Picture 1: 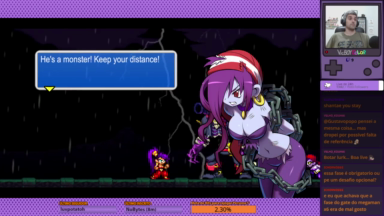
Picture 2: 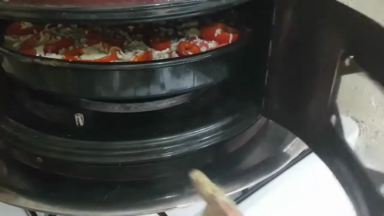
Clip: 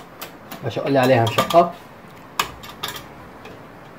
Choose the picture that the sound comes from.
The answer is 2